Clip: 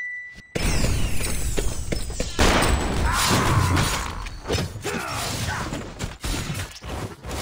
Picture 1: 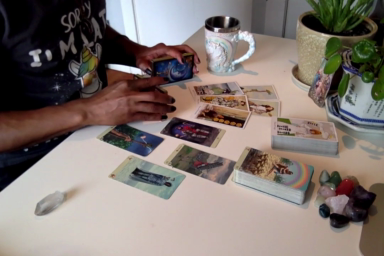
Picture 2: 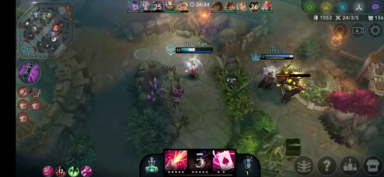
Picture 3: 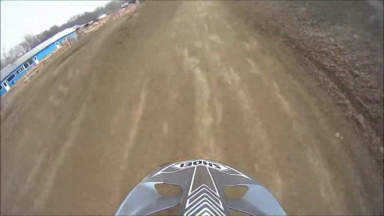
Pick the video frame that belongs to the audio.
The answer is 2